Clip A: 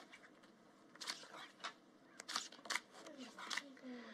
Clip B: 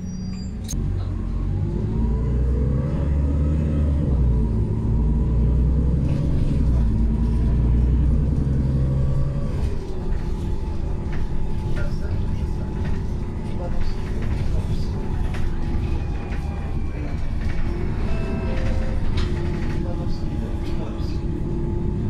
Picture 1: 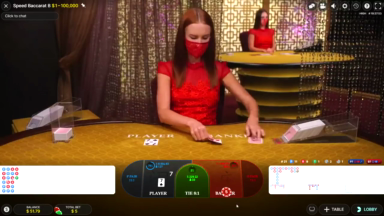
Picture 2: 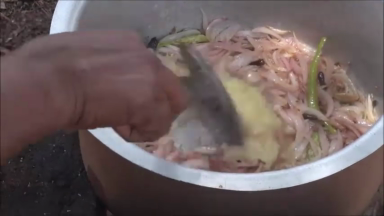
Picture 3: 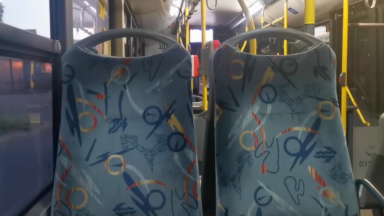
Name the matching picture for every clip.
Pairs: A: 1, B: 3